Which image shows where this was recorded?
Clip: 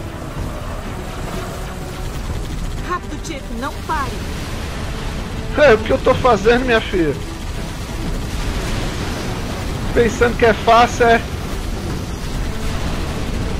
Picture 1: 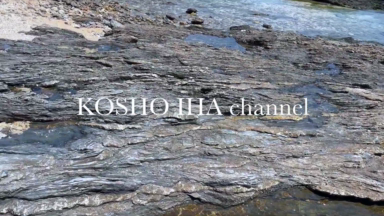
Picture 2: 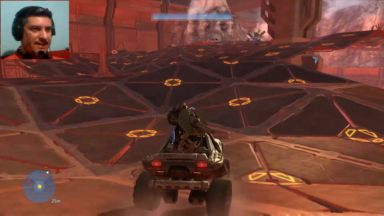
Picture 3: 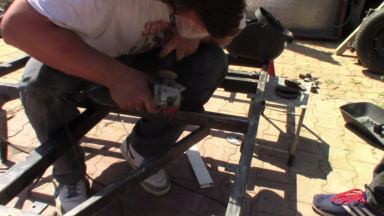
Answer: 2